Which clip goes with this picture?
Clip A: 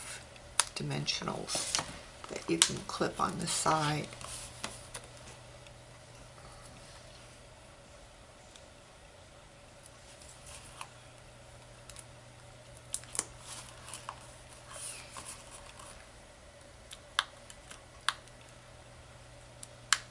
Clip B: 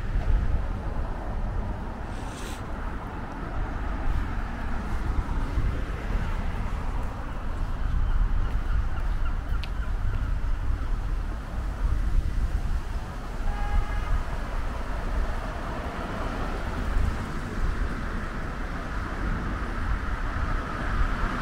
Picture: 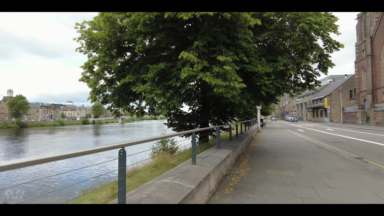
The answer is B